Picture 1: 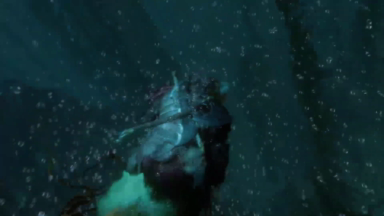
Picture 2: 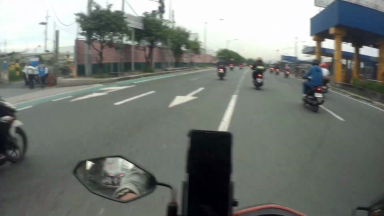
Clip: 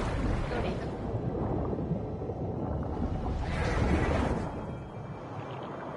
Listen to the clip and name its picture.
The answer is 1